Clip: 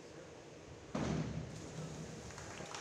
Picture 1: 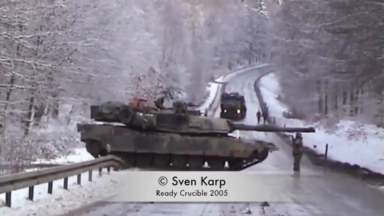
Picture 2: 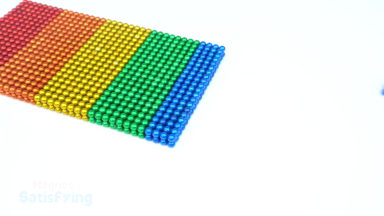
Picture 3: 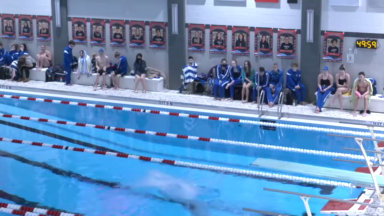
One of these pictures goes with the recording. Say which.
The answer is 3